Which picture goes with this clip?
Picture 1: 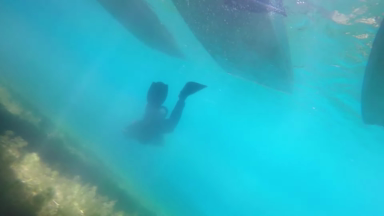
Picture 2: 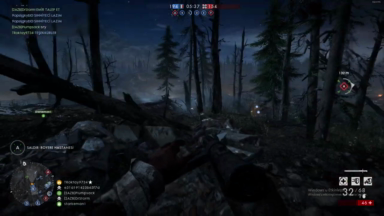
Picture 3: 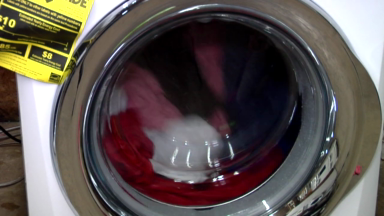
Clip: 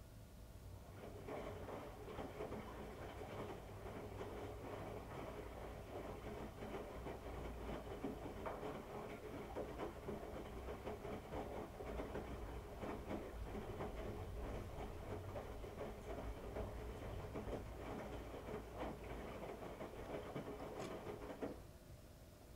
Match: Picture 3